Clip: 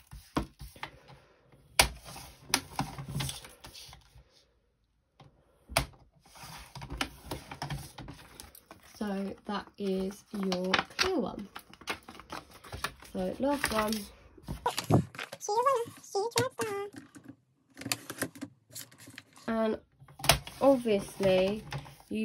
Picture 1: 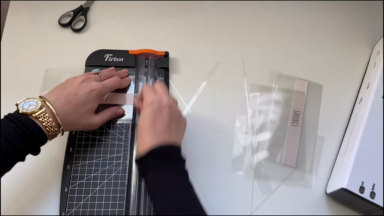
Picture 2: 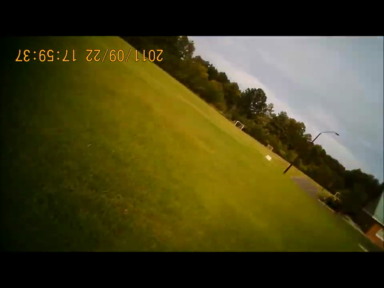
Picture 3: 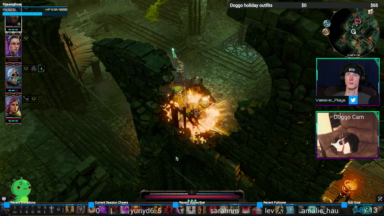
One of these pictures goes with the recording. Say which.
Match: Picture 1